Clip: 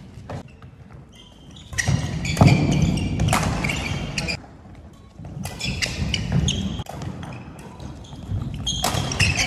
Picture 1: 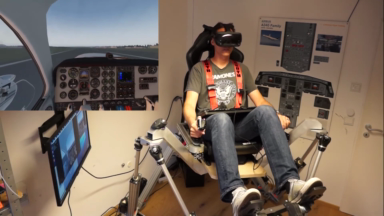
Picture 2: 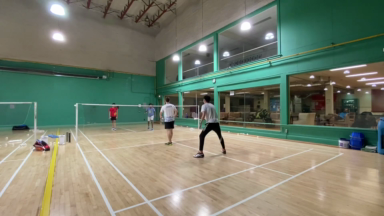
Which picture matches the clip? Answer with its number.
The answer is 2